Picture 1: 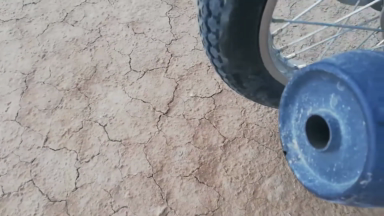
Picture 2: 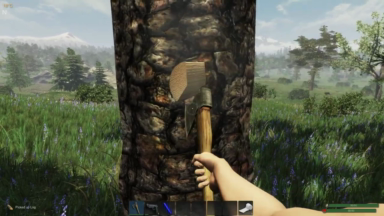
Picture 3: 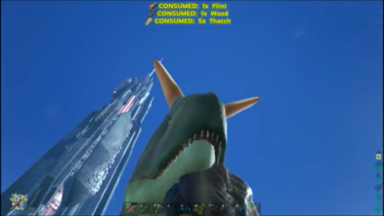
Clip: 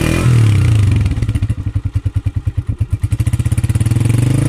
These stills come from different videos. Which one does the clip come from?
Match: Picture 1